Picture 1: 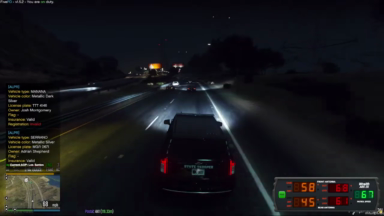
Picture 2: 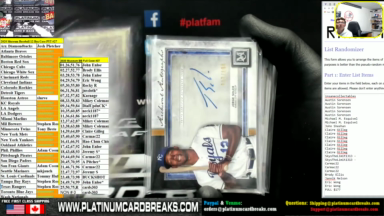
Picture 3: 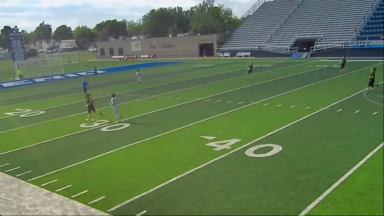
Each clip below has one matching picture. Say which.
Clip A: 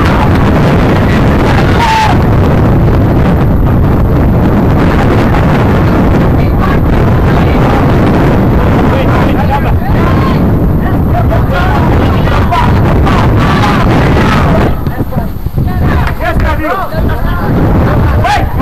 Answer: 3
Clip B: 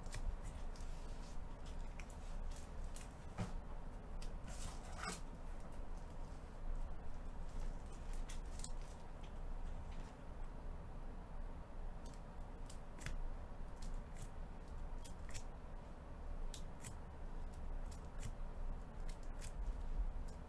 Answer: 2